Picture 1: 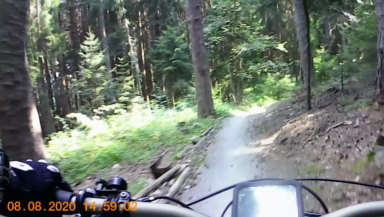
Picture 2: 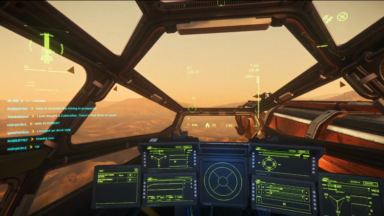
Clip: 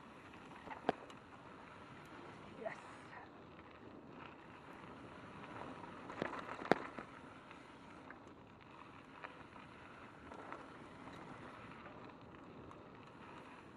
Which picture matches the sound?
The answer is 1